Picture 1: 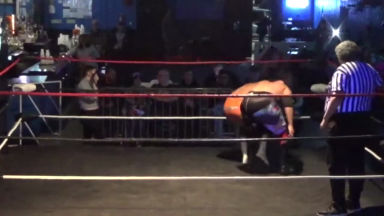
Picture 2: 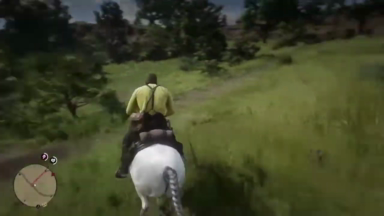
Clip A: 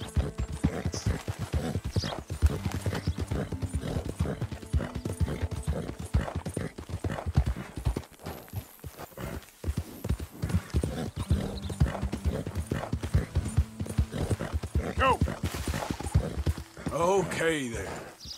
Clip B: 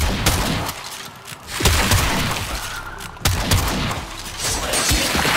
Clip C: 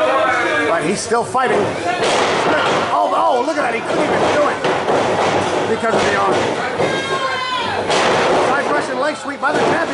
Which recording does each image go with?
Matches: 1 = C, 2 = A